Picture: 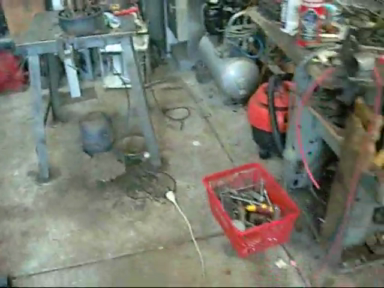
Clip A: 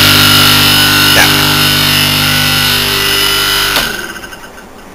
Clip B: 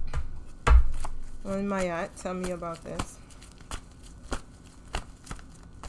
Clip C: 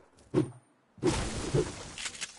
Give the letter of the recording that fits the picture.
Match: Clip A